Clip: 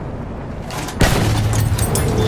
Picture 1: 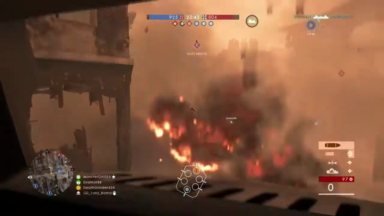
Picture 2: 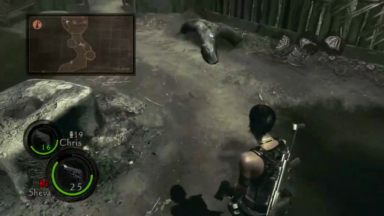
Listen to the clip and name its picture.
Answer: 1